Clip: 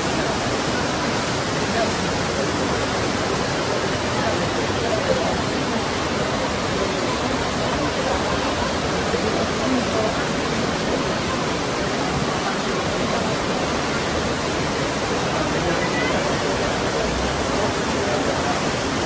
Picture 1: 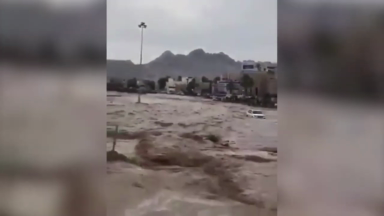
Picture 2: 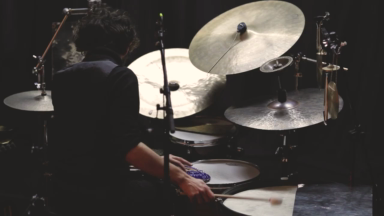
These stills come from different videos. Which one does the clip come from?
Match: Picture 1